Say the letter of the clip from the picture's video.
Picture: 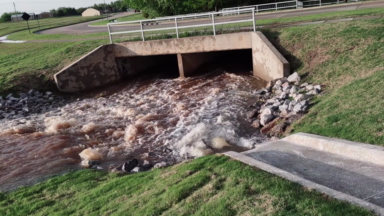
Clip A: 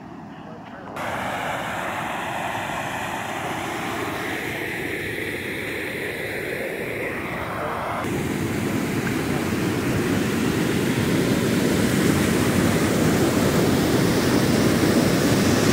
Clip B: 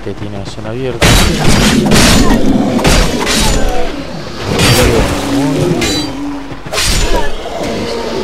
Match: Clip A